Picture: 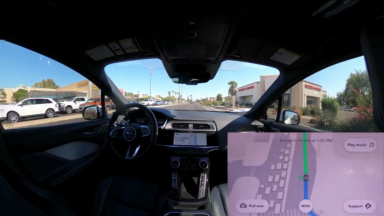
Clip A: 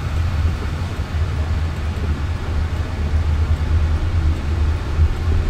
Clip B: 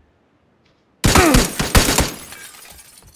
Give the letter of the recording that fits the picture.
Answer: A